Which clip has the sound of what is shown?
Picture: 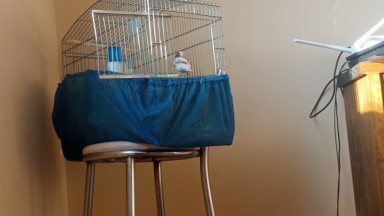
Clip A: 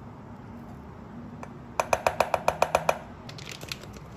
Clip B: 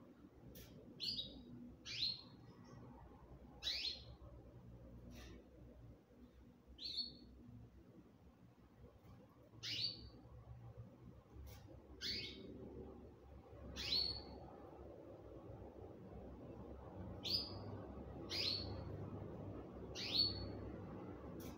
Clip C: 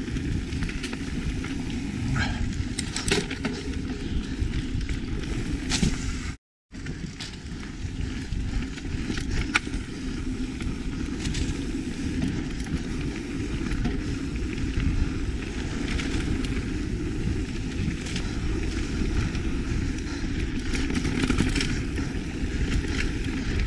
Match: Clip B